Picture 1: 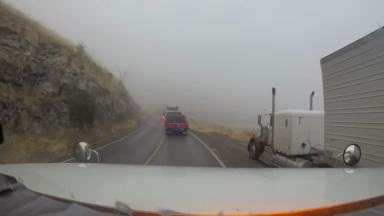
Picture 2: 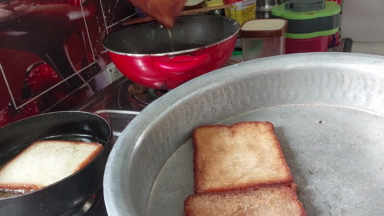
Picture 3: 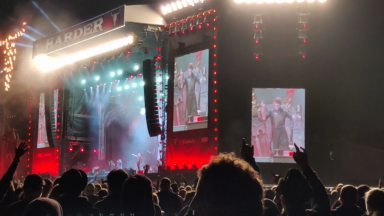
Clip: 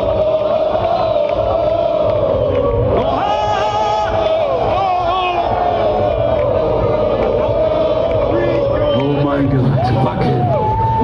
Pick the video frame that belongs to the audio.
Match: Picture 3